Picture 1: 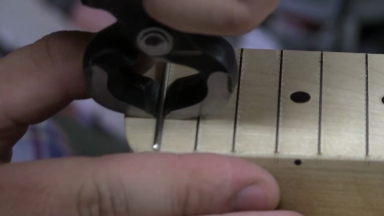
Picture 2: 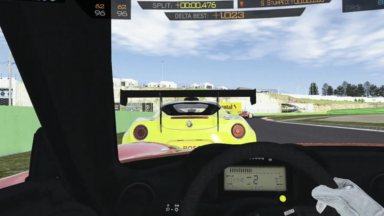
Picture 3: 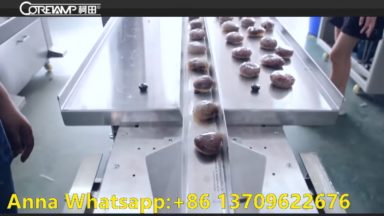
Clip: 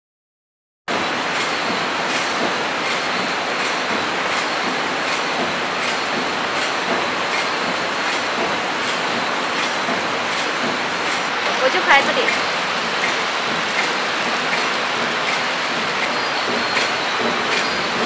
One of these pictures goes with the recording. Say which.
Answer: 3